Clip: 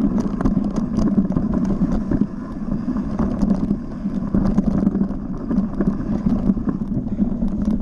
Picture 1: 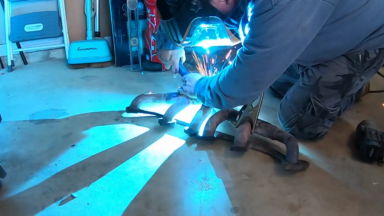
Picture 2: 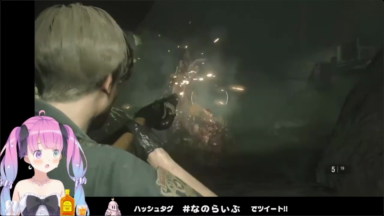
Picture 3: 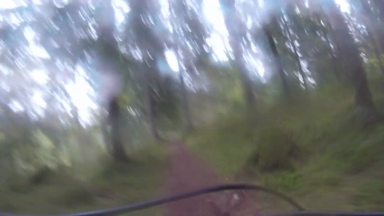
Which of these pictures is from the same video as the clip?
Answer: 3